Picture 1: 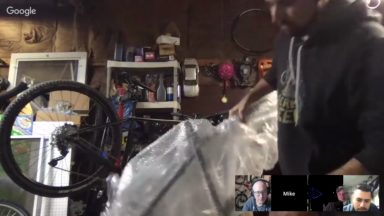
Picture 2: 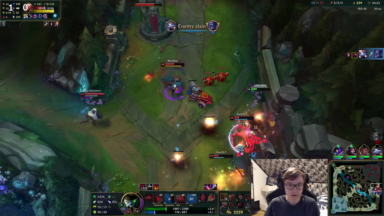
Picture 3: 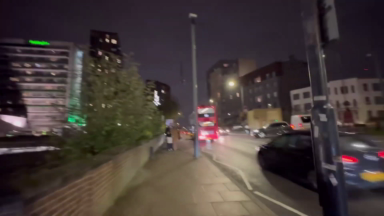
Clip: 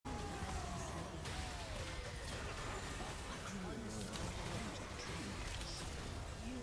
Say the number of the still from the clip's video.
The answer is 2